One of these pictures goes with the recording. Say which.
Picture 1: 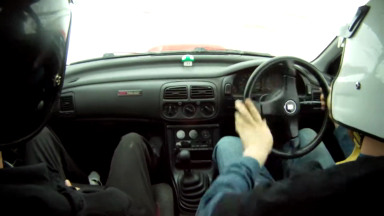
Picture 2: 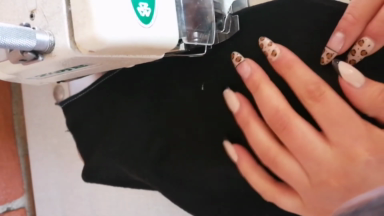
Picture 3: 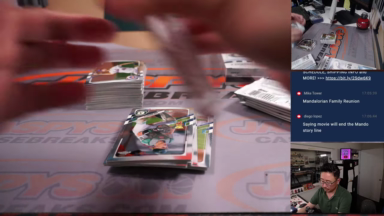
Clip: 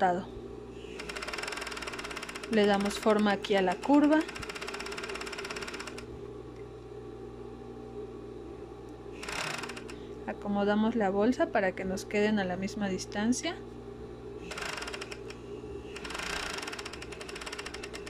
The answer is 2